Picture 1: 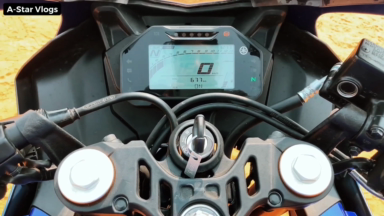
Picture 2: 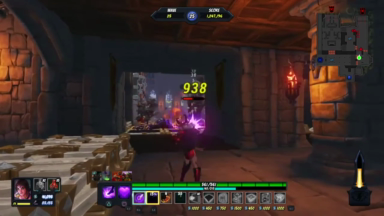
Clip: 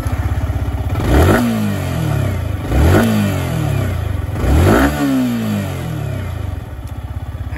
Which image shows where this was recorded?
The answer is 1